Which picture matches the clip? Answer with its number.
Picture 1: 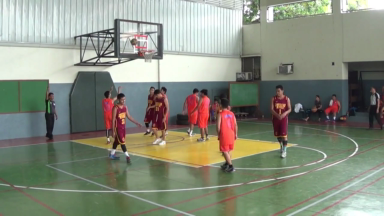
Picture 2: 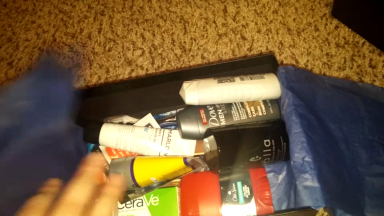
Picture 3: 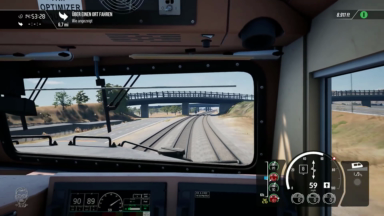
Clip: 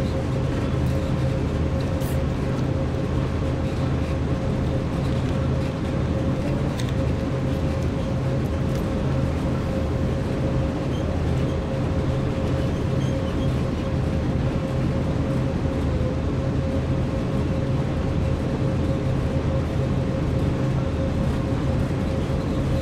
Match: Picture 3